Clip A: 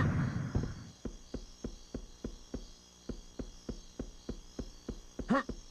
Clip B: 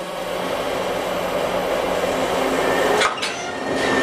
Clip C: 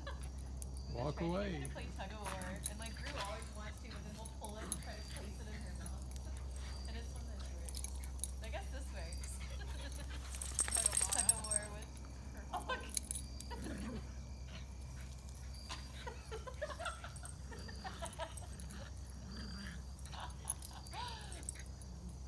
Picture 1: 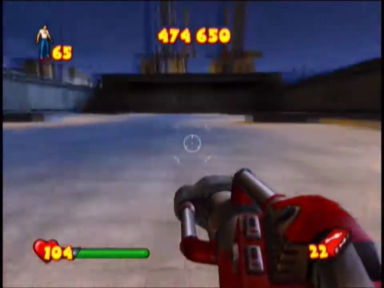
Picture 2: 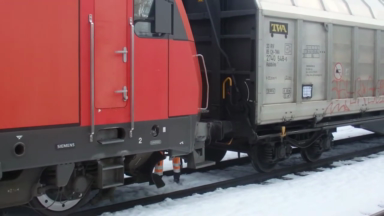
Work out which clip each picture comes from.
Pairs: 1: A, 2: B